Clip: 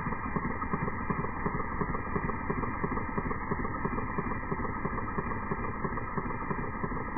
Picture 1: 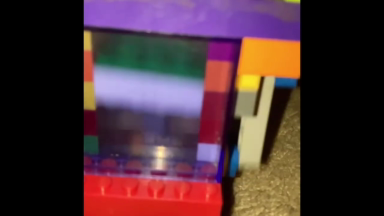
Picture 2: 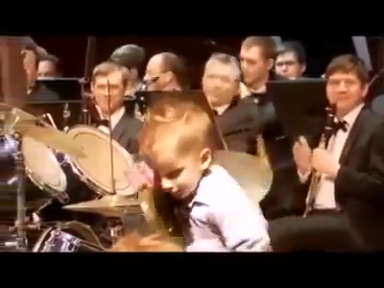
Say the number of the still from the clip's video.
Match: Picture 1